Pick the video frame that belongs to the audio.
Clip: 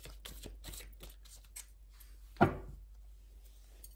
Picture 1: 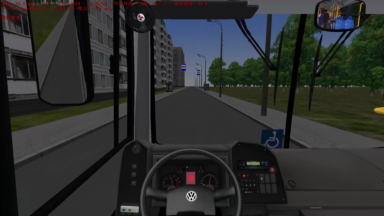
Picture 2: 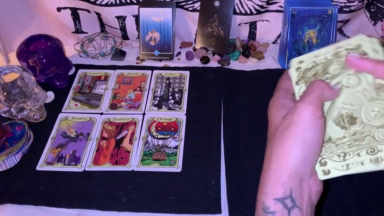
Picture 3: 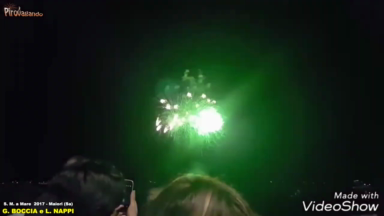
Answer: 2